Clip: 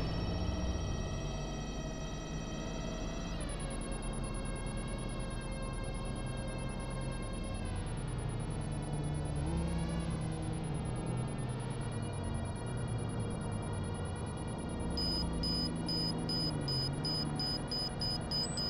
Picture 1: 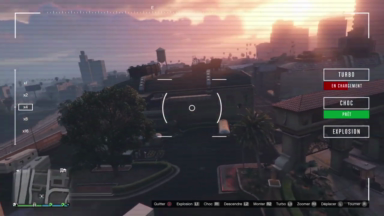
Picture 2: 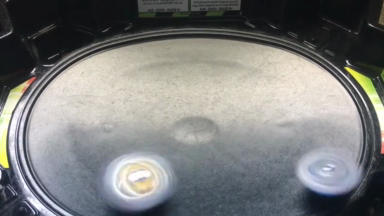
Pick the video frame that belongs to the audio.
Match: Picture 1